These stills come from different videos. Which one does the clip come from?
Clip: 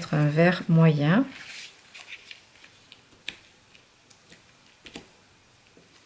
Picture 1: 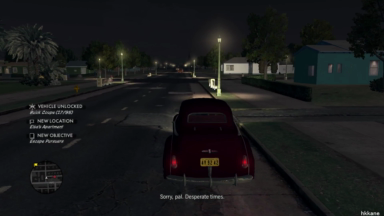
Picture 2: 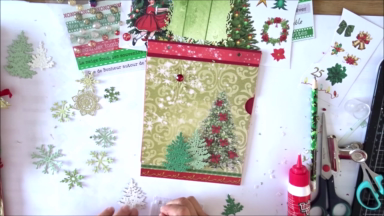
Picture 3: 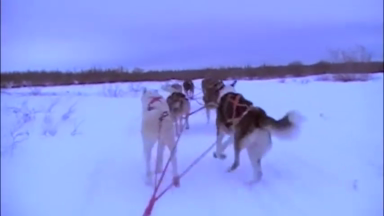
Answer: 2